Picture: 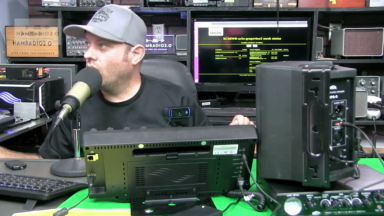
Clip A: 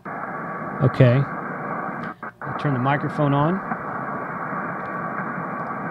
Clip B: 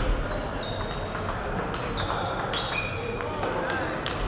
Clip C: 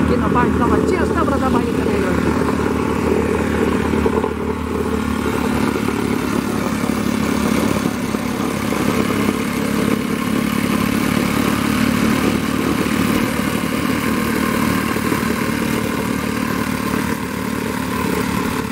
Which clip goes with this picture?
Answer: A